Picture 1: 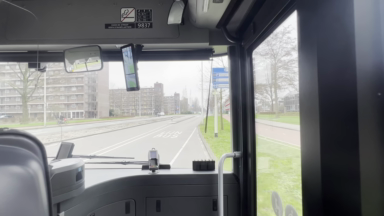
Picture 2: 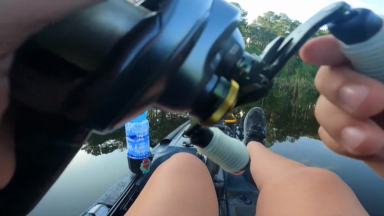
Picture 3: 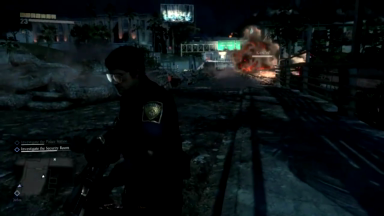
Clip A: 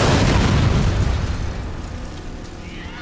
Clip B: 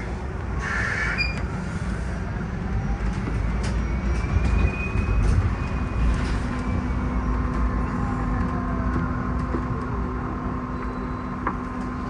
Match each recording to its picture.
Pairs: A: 3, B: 1